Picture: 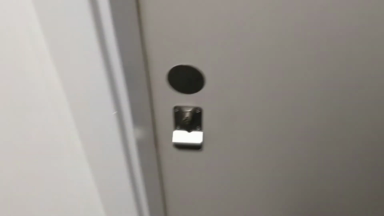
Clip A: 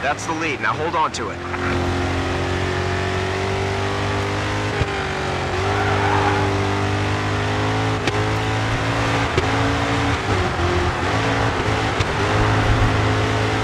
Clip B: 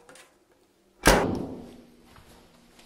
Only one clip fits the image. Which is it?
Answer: B